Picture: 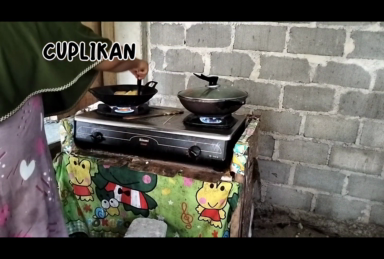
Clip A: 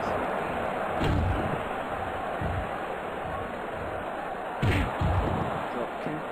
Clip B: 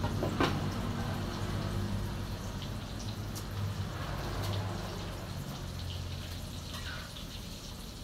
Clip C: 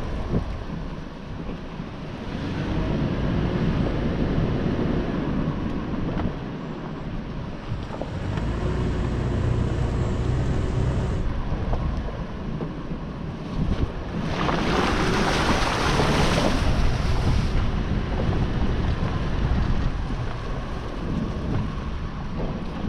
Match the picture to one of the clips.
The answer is B